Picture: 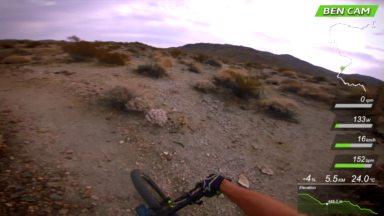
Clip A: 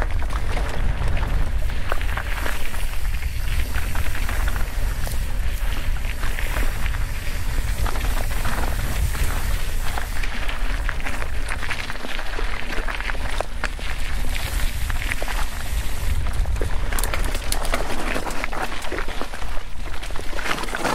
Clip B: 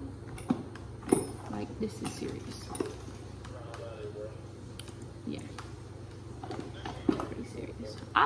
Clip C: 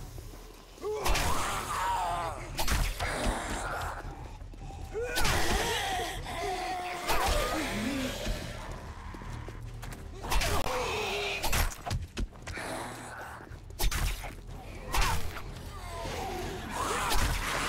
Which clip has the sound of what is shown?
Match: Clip A